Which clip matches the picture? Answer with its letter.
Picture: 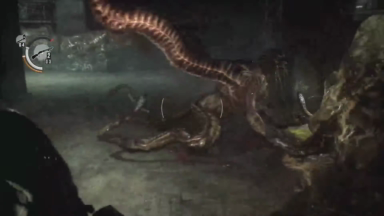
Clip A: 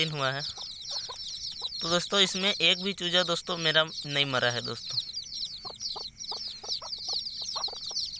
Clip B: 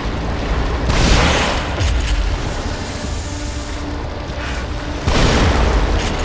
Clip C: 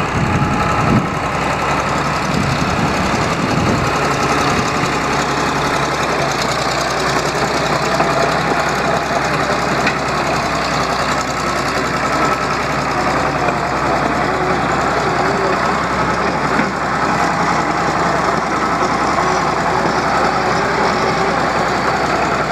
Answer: B